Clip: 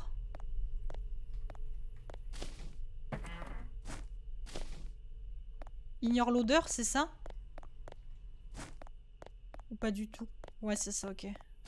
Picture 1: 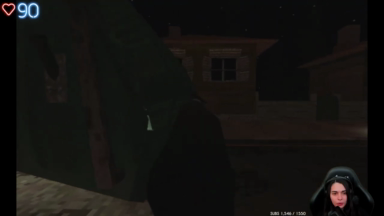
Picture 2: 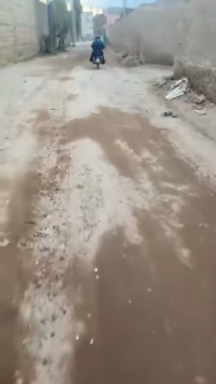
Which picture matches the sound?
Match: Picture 1